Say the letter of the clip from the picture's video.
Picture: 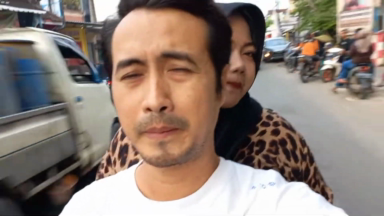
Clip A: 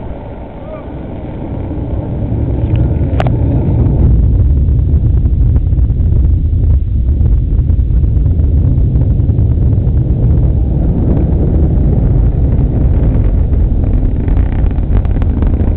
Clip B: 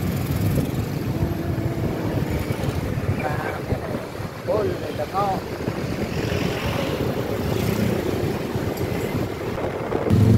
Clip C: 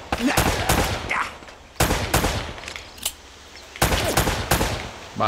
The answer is B